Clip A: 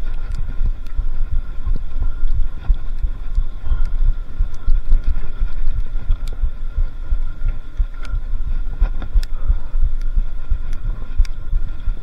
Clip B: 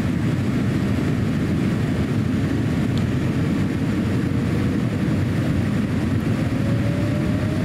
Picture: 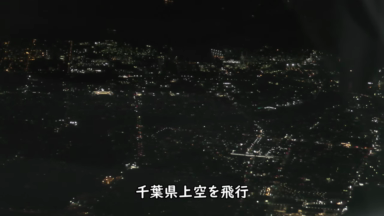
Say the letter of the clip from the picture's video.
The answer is B